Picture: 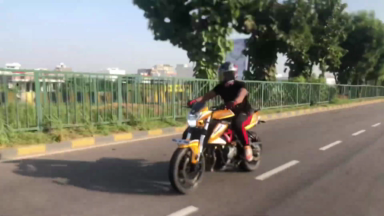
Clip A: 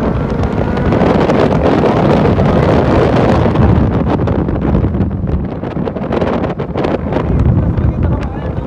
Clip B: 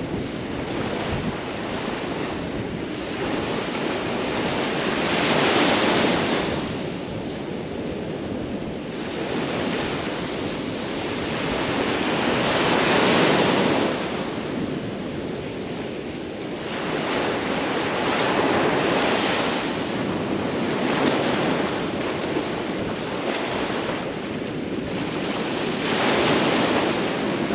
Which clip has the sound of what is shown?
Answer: A